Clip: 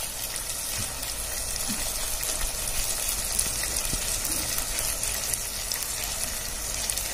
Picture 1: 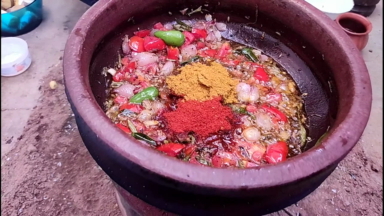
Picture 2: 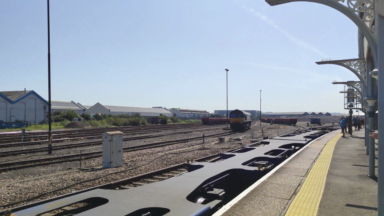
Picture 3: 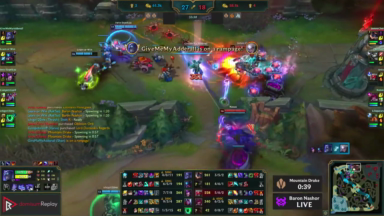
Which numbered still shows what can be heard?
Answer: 1